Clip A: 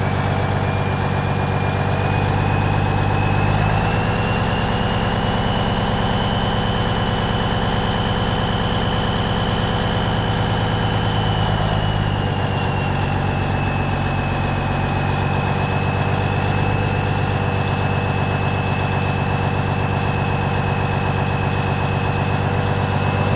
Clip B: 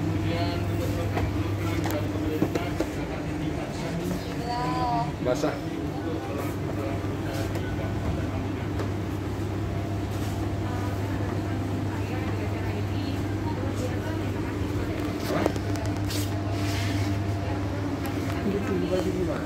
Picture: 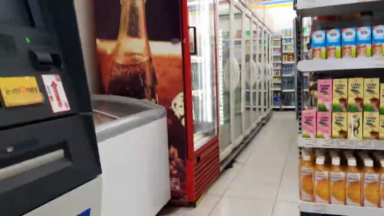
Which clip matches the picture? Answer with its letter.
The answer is B